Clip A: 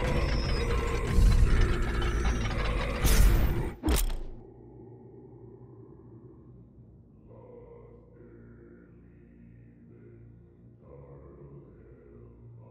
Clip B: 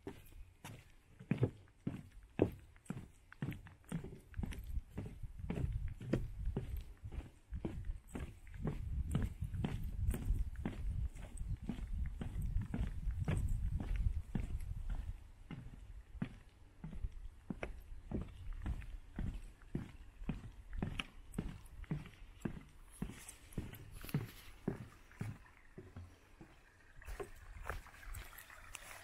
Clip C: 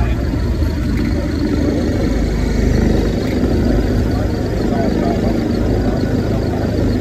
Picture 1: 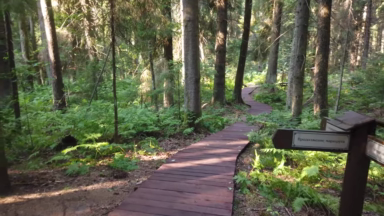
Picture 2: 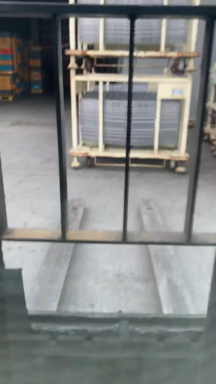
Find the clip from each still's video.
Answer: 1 B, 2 C